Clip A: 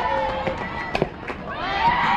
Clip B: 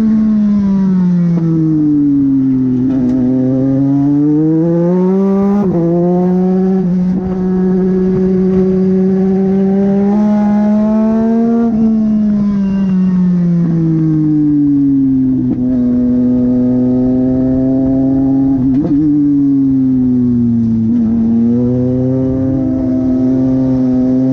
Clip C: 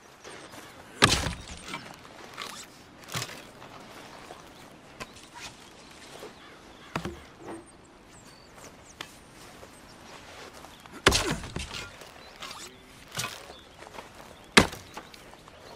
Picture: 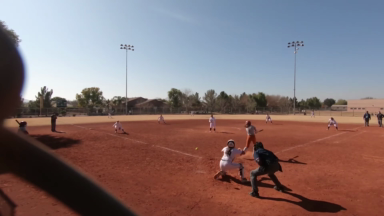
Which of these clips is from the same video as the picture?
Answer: A